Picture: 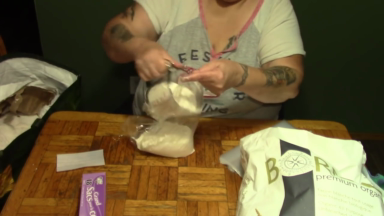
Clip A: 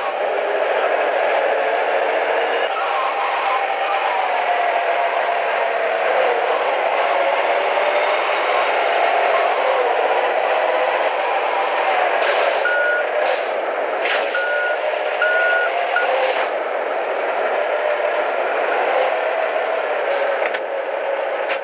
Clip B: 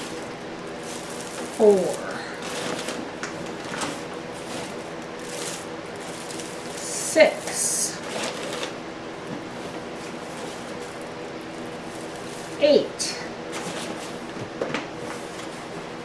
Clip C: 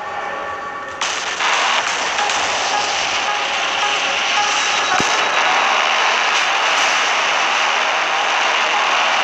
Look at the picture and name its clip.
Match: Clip B